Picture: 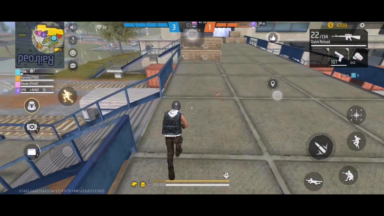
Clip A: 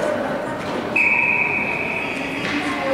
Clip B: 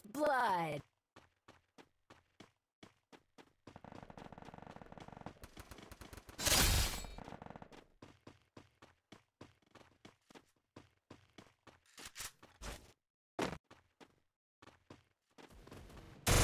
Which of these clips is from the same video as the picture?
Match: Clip B